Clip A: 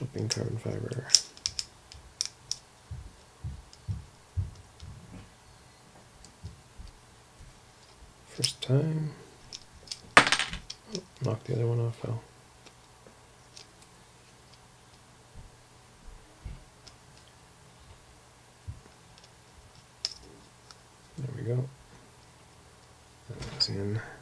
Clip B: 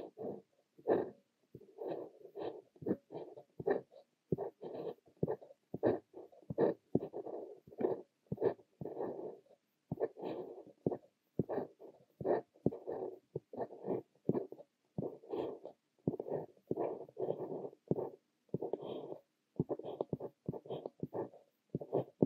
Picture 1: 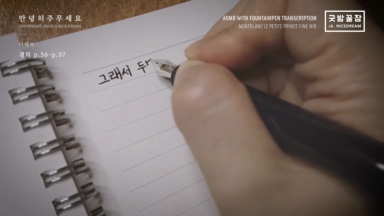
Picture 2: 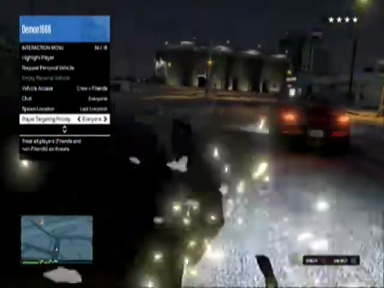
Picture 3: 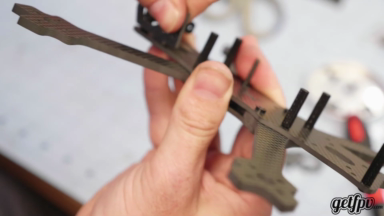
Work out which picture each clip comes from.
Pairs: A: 3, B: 1